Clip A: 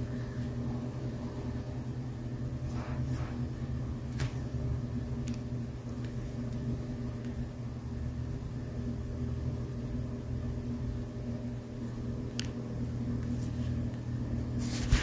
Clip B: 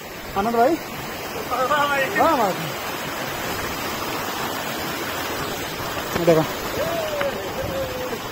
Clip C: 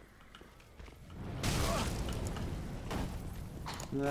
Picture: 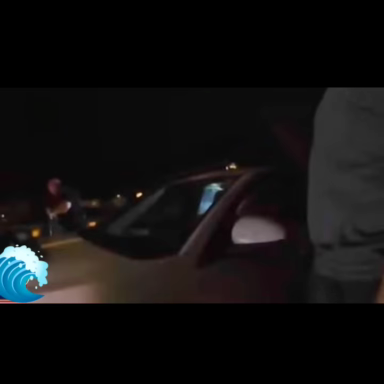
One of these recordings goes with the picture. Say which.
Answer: A